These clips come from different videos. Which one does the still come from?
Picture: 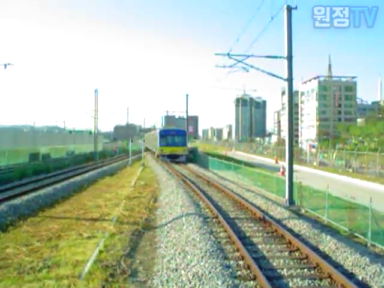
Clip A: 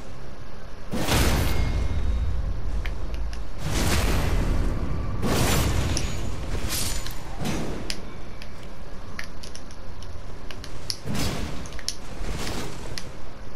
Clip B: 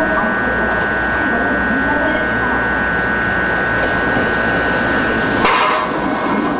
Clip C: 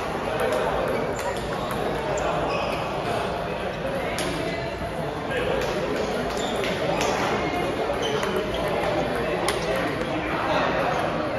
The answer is B